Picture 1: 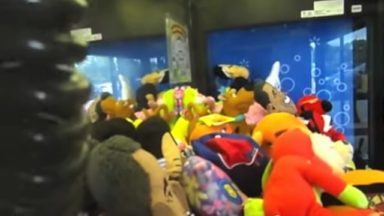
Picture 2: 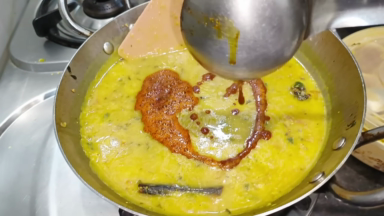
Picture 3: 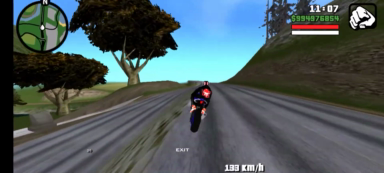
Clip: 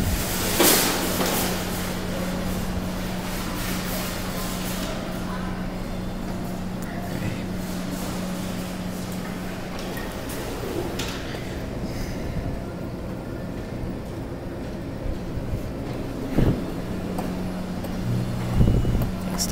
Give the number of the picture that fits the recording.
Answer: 1